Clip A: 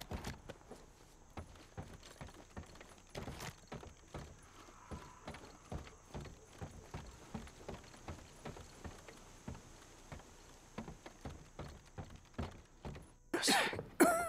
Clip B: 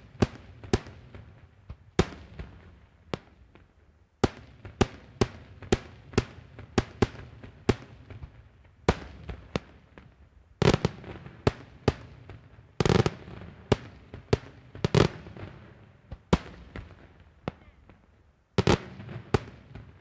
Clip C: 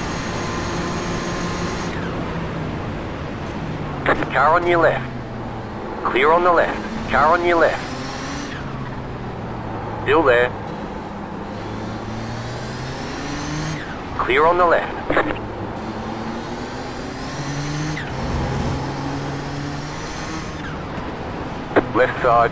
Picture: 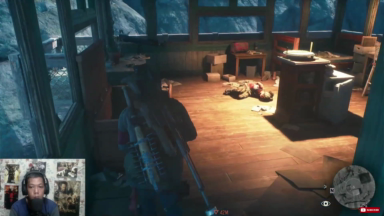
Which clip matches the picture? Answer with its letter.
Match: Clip A